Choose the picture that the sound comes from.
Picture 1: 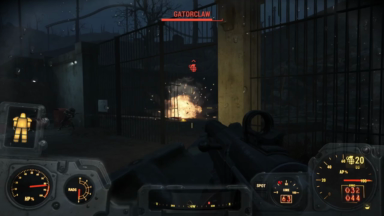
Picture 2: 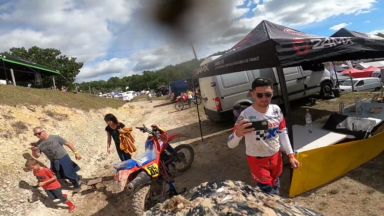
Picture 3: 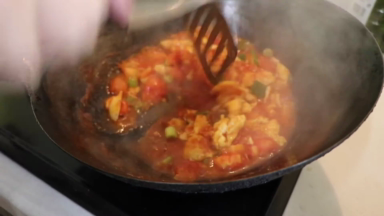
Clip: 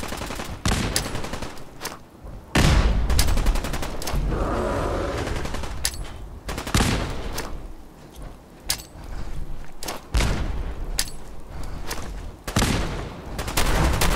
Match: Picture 1